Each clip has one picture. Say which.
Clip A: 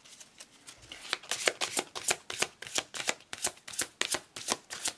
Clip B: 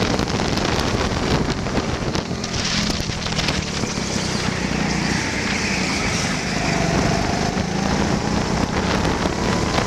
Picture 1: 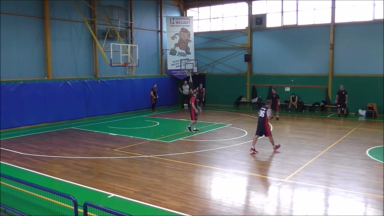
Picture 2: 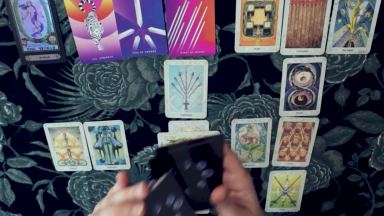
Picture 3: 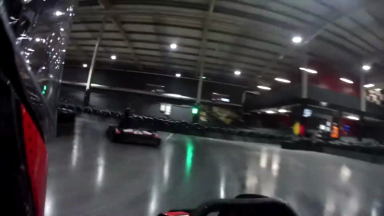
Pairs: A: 2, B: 3